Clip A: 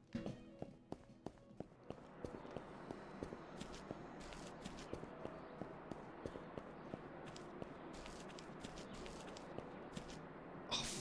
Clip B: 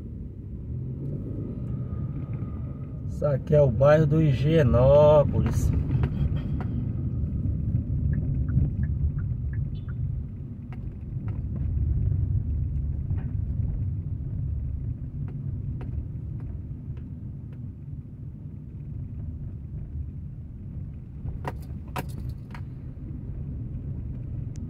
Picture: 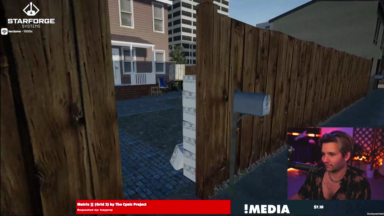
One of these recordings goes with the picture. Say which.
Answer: A